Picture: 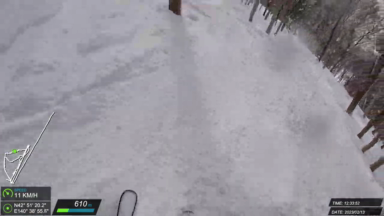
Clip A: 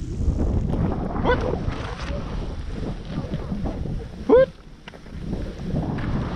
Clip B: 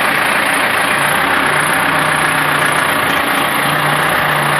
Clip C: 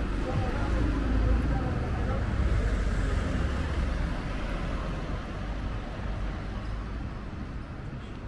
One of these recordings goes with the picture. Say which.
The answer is A